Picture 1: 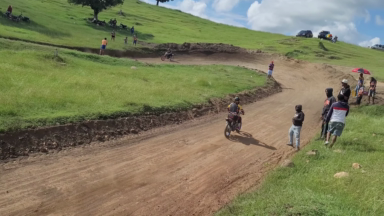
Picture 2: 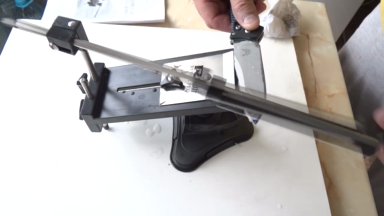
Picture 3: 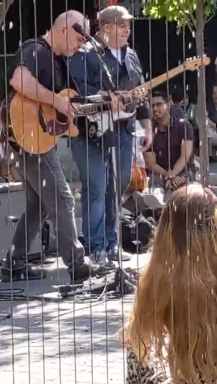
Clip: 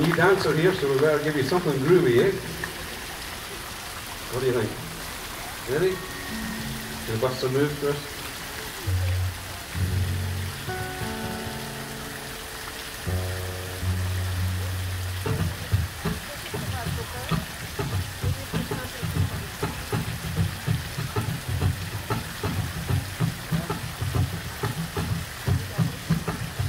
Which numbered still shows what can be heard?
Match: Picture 3